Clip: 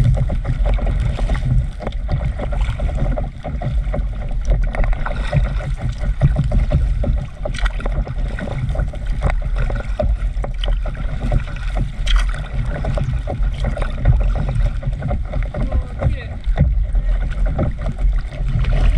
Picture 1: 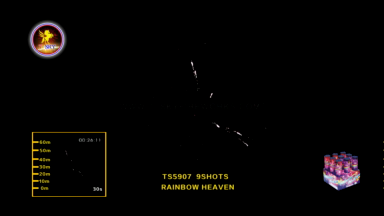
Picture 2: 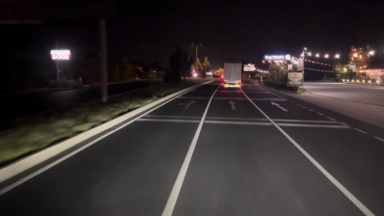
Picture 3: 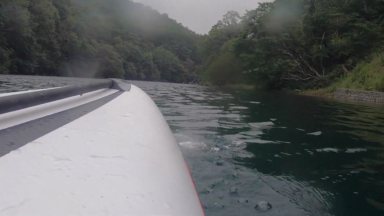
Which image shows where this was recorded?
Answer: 3